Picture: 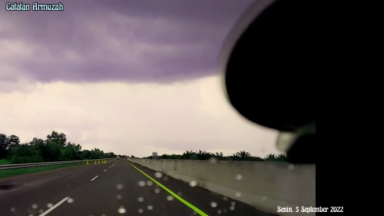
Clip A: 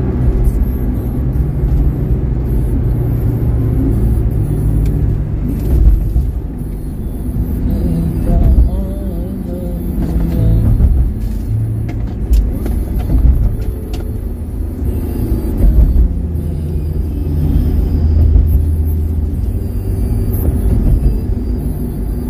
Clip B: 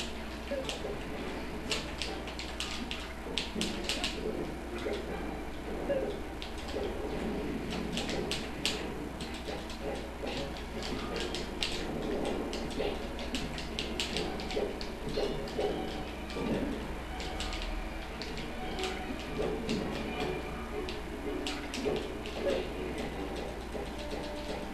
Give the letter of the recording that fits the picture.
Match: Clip A